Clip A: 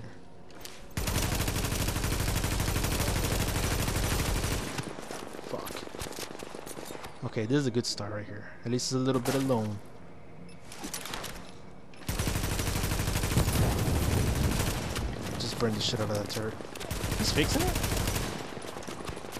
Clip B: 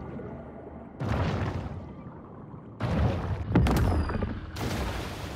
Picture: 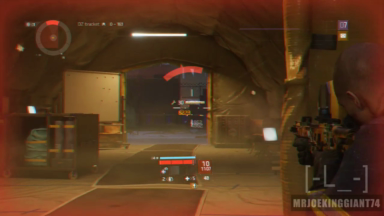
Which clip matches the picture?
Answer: A